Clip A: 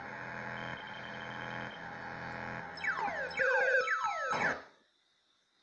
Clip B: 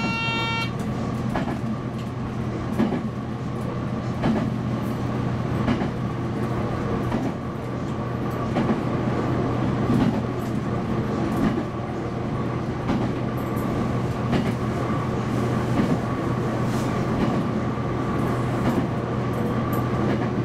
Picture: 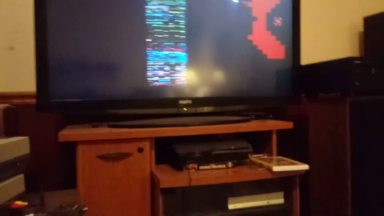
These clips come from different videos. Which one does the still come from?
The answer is A